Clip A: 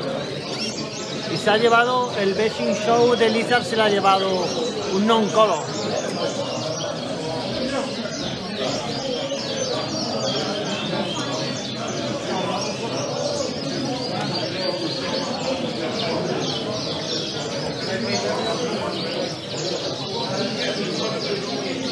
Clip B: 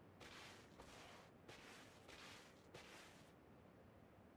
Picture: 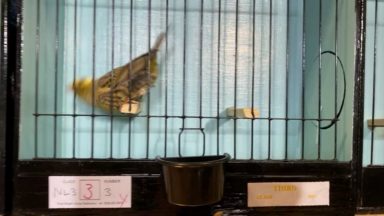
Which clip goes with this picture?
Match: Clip A